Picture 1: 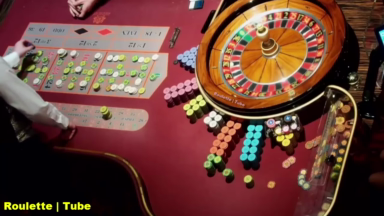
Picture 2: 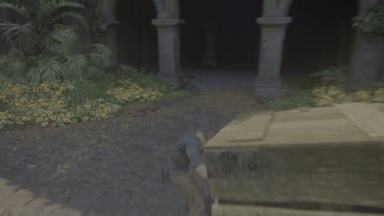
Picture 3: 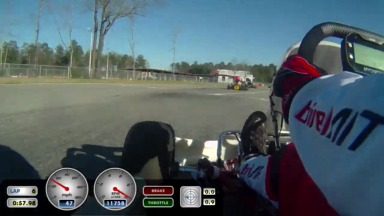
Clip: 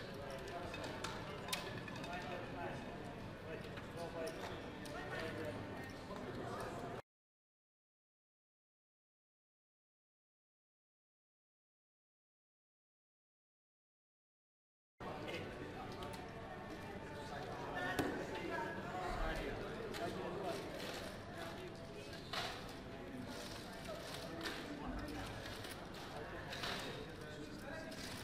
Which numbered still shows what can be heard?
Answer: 1